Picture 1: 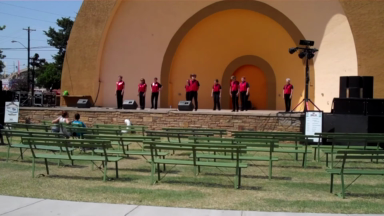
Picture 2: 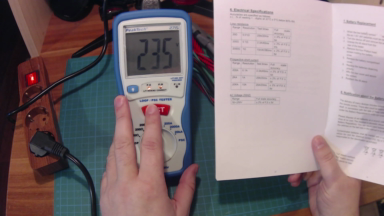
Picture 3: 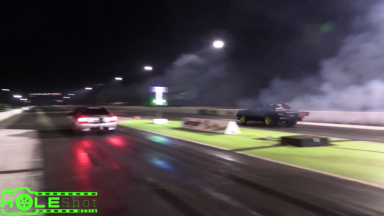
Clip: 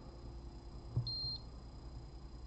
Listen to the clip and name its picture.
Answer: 2